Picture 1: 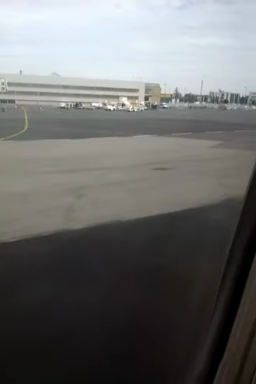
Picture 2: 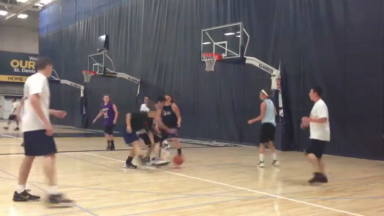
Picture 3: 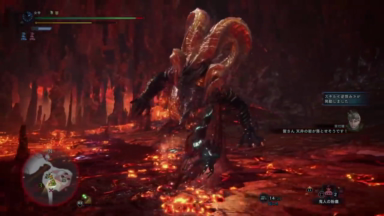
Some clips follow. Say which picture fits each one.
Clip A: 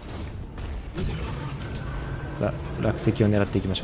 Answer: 3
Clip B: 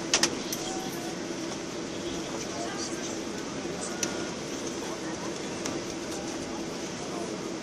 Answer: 1